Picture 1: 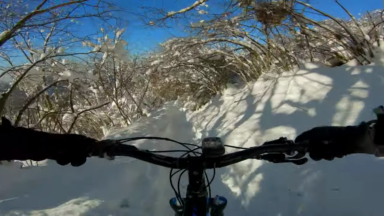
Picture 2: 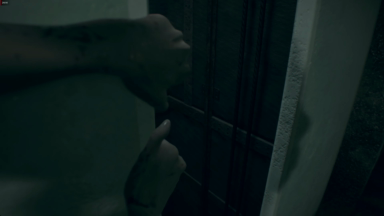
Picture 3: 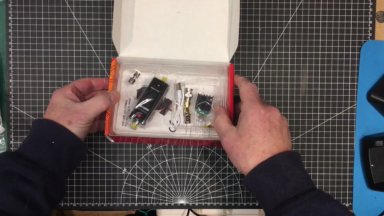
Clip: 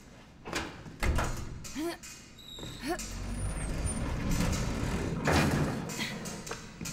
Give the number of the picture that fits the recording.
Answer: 2